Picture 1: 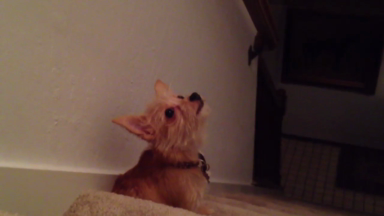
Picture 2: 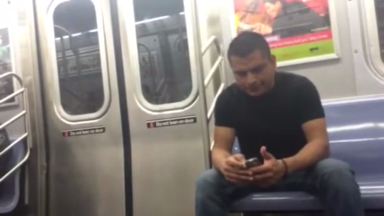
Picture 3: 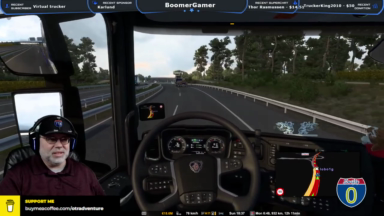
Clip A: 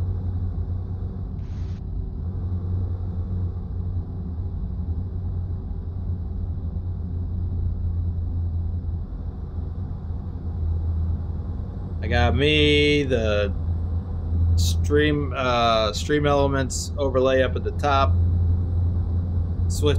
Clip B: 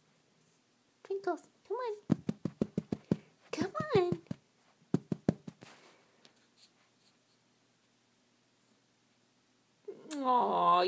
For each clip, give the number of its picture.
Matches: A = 3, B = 1